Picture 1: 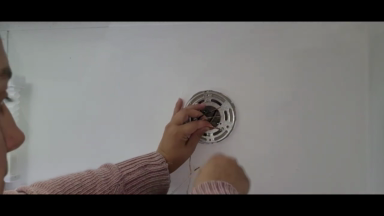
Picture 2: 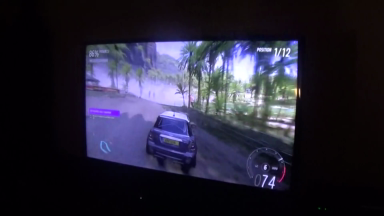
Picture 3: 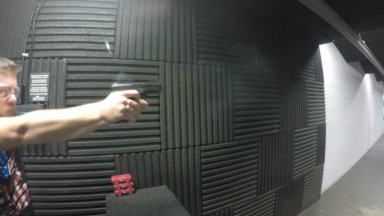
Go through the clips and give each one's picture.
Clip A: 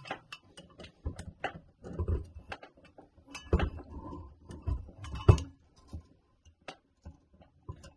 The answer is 1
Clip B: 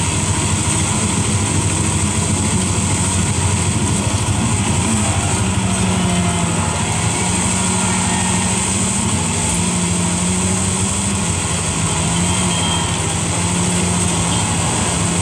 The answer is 2